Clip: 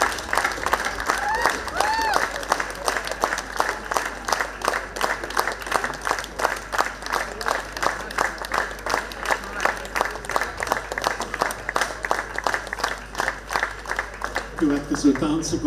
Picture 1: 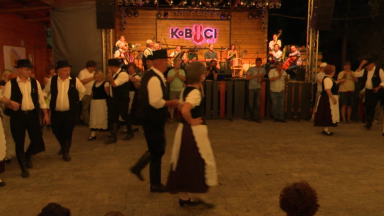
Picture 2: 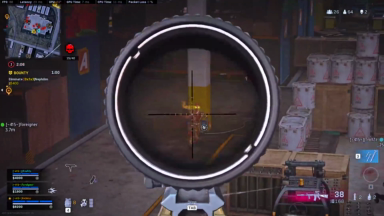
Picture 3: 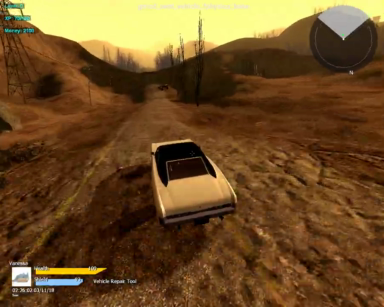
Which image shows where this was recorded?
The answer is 1